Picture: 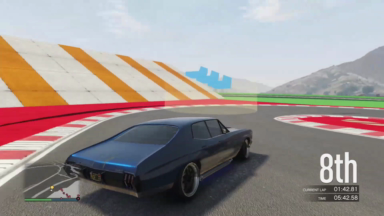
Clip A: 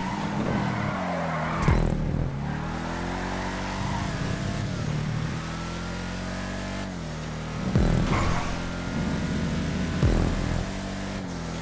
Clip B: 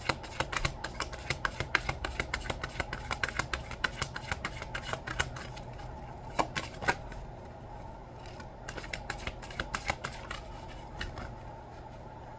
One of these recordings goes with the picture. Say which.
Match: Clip A